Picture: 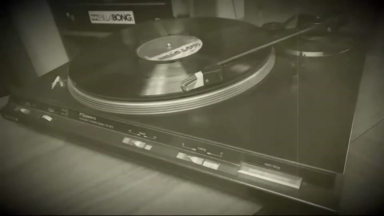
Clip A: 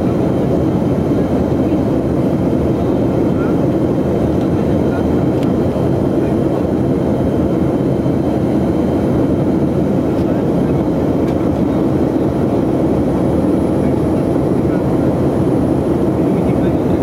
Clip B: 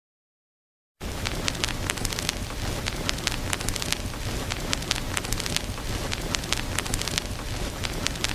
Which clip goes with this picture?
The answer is B